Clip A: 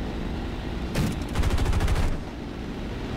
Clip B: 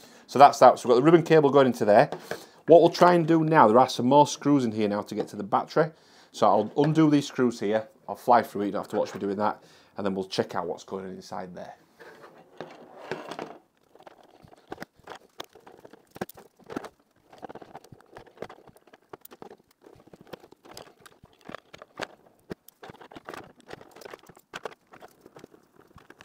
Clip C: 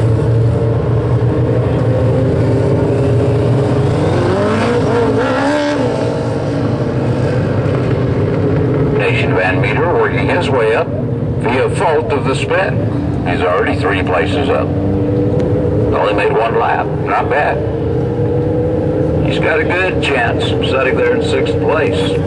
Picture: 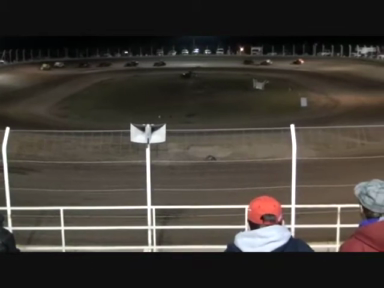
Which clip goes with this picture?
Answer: C